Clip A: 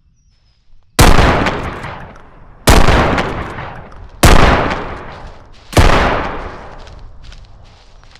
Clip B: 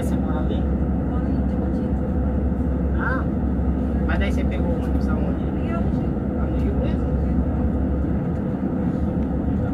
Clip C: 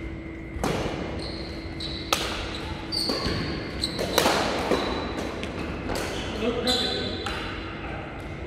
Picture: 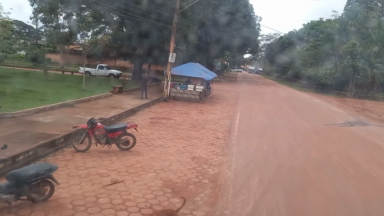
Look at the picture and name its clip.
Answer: B